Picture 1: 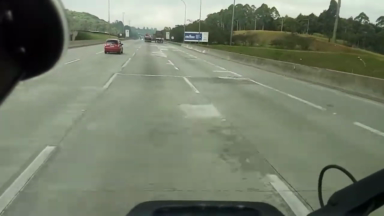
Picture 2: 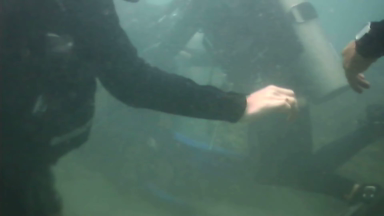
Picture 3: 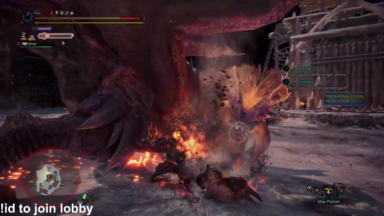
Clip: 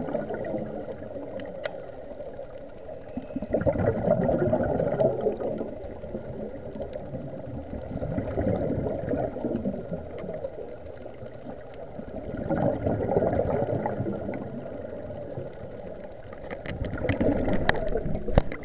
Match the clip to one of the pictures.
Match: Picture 2